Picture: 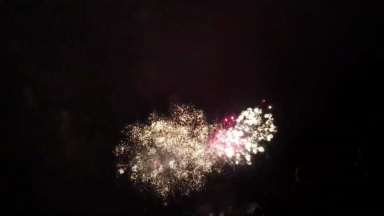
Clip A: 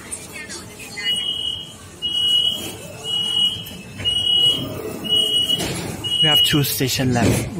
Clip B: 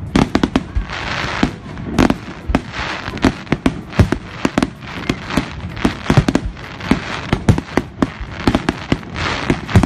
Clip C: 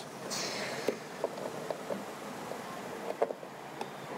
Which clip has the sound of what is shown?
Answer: B